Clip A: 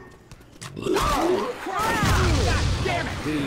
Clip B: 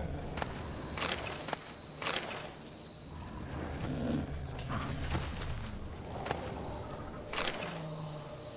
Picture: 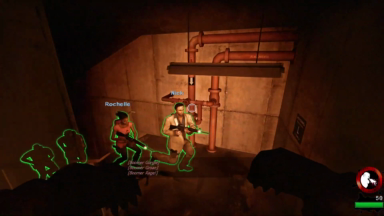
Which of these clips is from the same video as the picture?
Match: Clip A